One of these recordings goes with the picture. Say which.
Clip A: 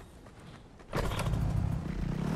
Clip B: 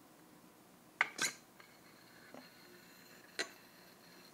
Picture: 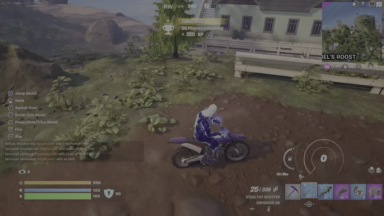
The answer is A